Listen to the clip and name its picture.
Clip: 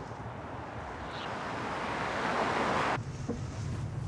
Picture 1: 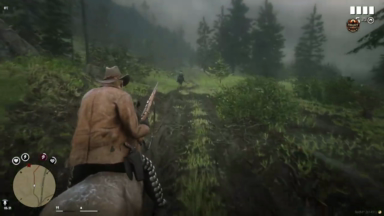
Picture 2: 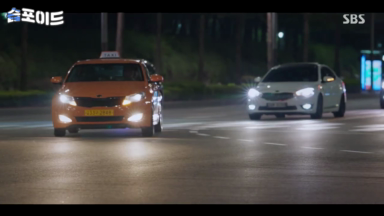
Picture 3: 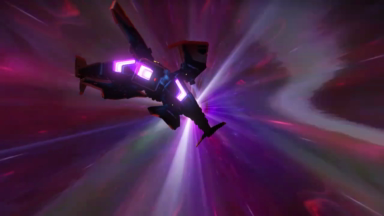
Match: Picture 2